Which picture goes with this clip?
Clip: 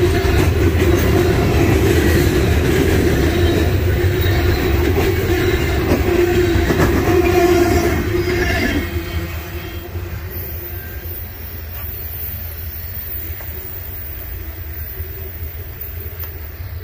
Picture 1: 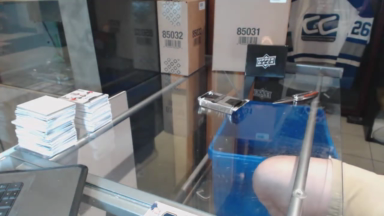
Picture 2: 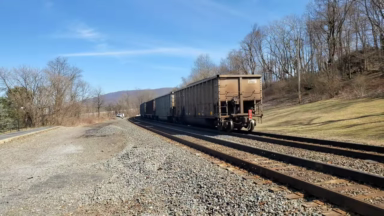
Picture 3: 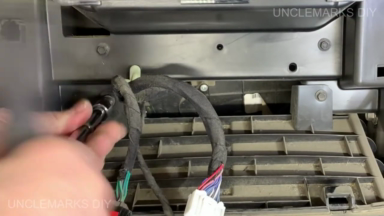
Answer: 2